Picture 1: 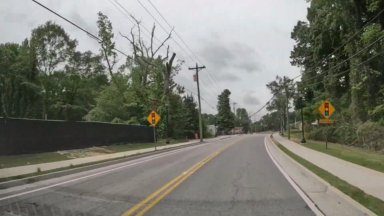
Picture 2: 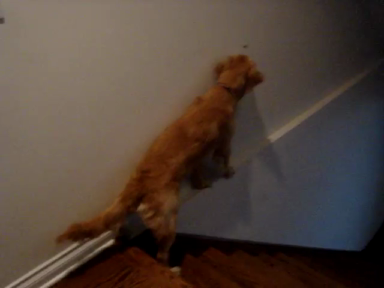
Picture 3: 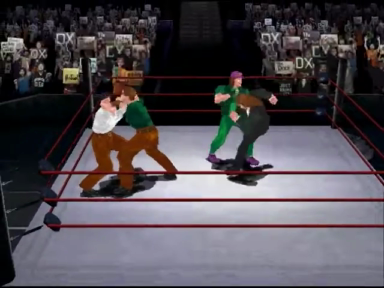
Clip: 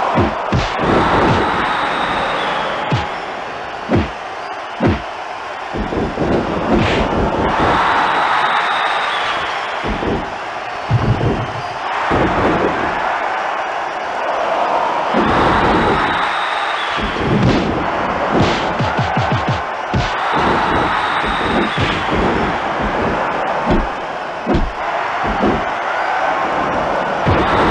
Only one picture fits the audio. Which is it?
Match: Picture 3